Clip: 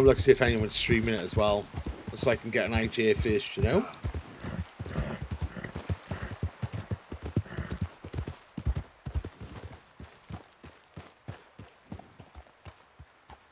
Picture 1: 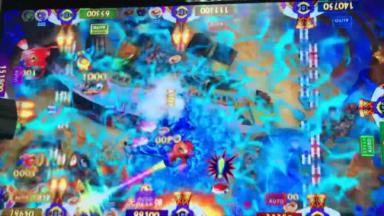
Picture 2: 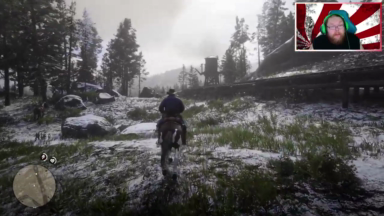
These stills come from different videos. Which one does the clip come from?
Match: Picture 2